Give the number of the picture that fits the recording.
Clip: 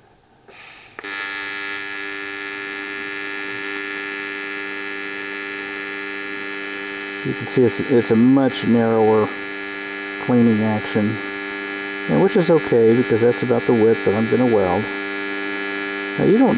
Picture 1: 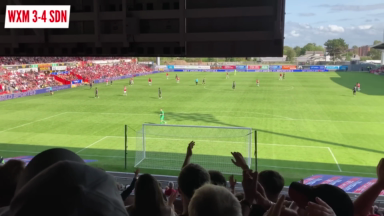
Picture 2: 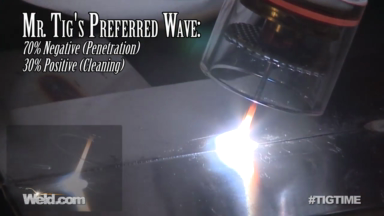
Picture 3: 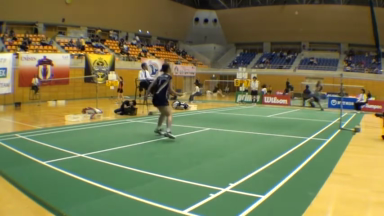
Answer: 2